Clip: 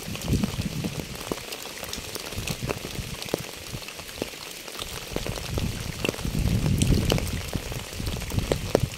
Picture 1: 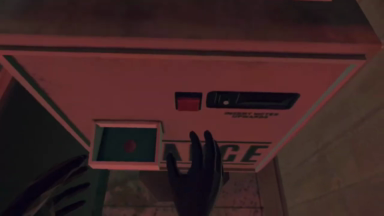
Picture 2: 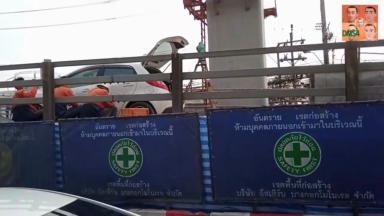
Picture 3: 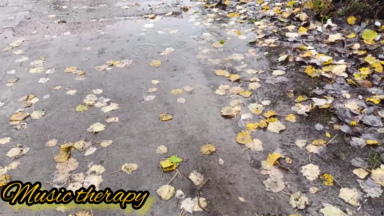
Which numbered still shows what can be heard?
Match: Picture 3